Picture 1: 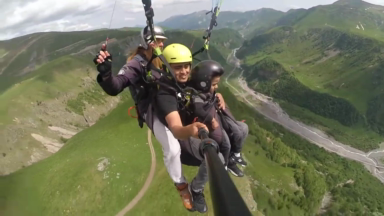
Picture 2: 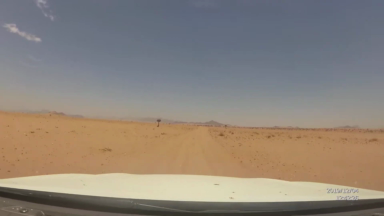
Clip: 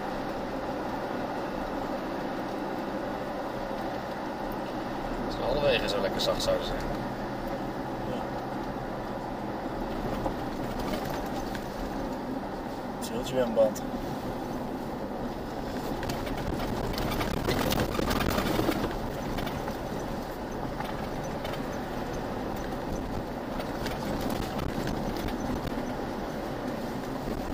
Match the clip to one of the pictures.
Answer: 2